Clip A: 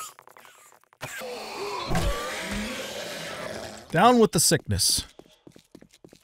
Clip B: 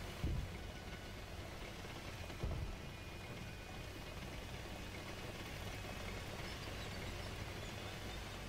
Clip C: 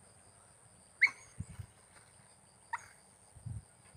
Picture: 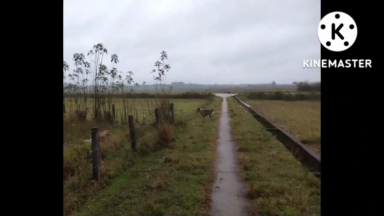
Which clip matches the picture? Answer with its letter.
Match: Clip C